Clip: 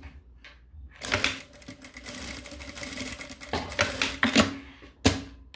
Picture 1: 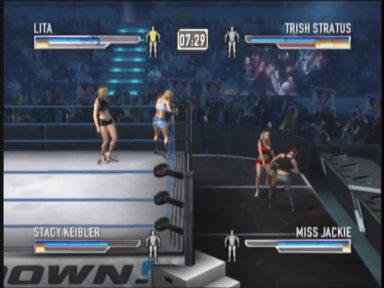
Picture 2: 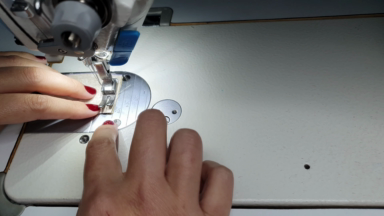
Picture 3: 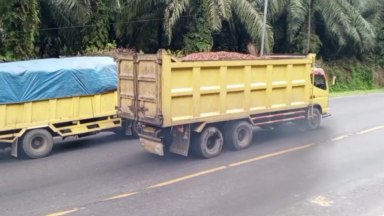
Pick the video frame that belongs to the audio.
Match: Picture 2